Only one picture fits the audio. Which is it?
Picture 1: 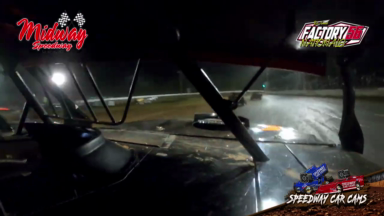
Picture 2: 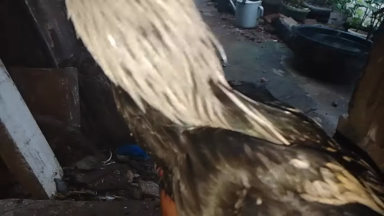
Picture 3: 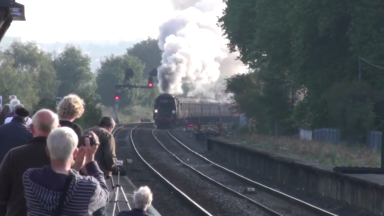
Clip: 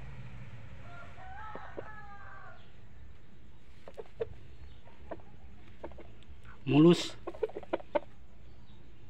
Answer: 2